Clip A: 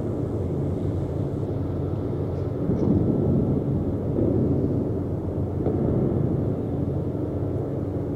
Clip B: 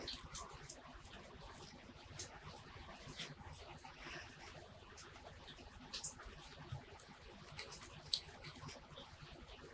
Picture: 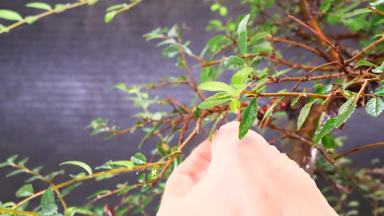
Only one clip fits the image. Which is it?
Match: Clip B